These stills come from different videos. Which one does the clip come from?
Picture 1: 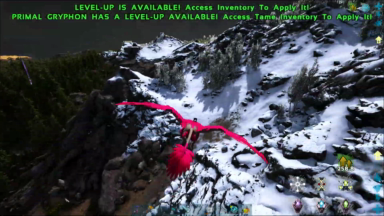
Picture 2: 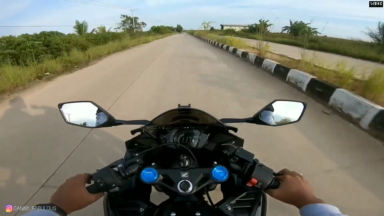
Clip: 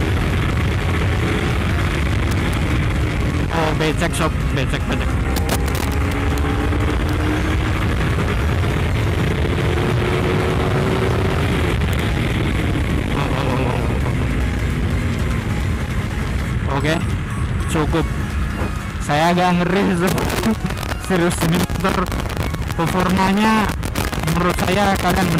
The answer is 2